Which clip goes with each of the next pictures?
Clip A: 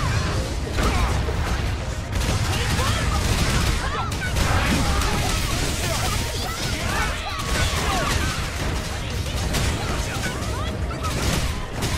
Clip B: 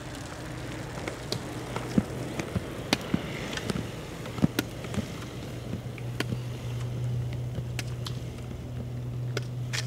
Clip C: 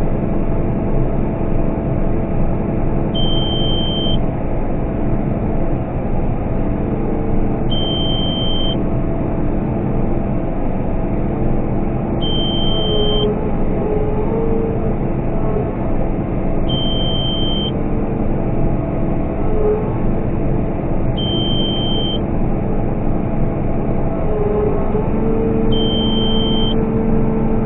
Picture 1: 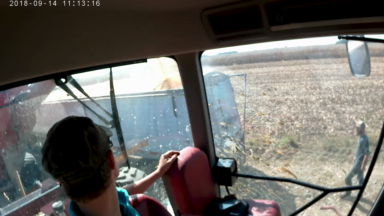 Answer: C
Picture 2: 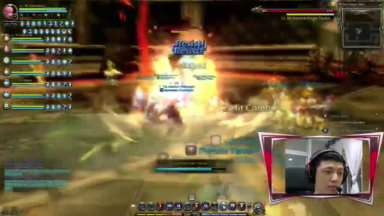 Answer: A